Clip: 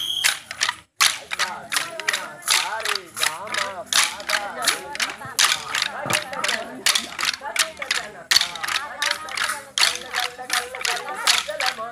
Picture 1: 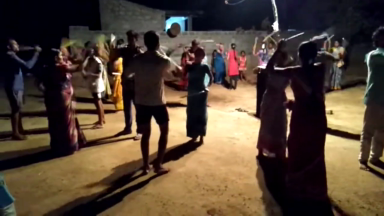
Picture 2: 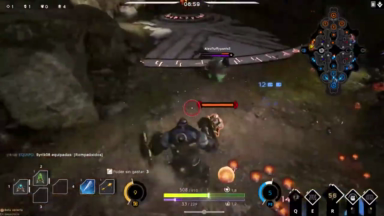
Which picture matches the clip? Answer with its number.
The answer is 1